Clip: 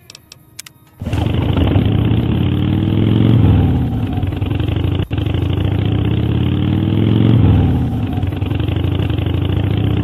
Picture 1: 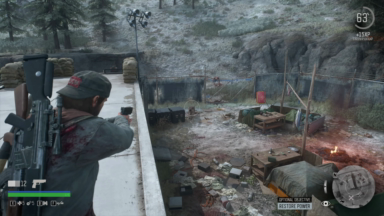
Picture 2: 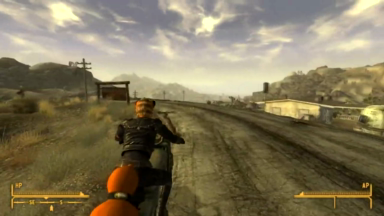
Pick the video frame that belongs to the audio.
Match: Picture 2